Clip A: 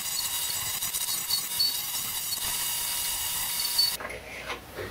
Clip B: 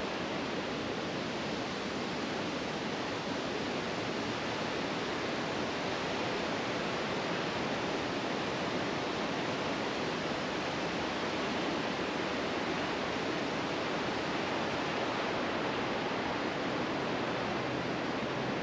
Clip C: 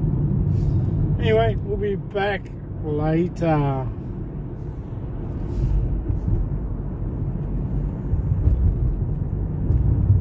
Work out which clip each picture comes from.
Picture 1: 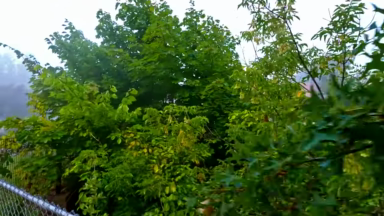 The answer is B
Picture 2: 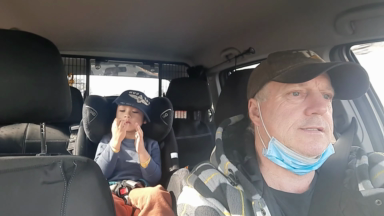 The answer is C